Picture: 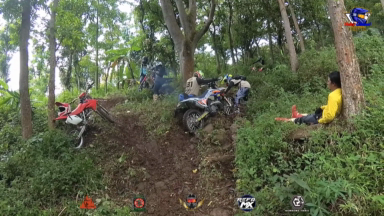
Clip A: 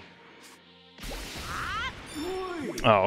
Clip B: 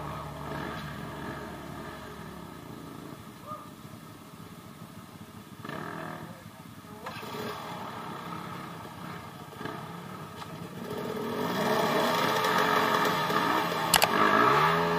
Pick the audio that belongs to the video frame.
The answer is B